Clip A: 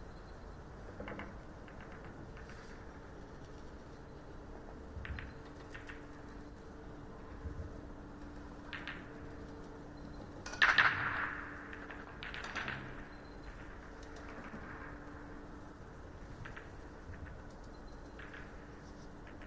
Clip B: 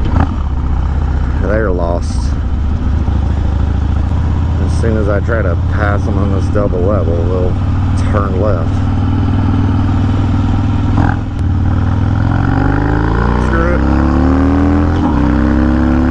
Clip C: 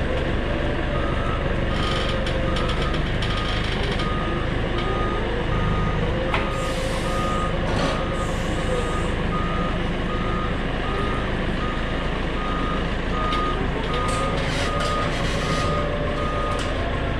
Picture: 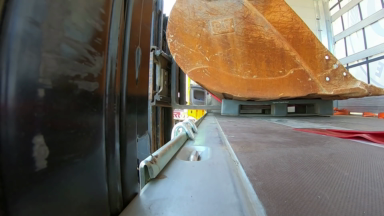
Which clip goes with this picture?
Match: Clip C